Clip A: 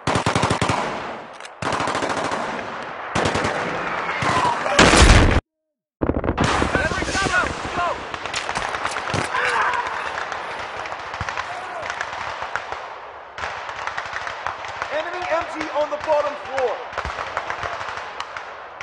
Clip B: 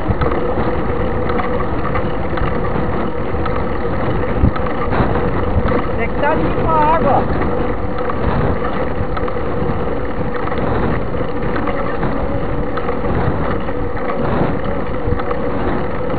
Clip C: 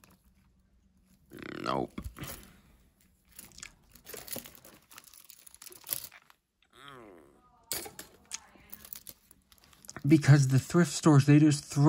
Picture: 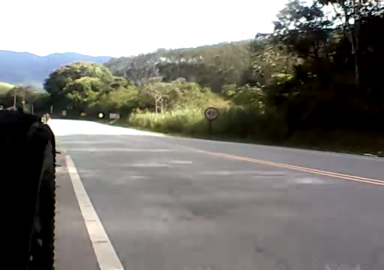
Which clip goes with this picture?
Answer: B